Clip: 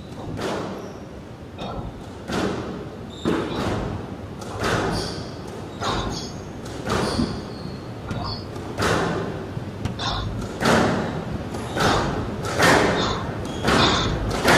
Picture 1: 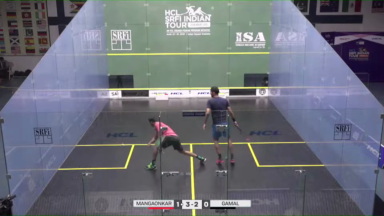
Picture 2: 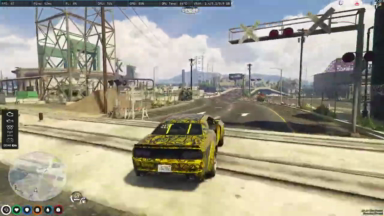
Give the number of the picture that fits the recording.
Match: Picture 1